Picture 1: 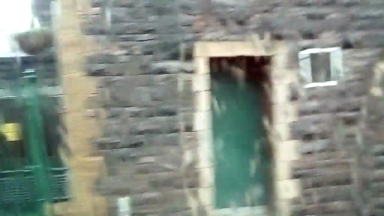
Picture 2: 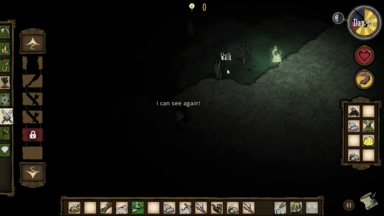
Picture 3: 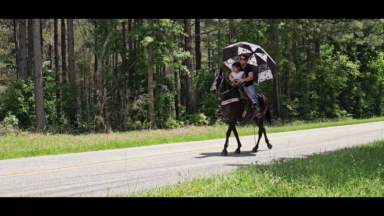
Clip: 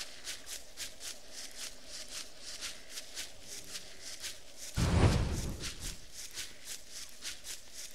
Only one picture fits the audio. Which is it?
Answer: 2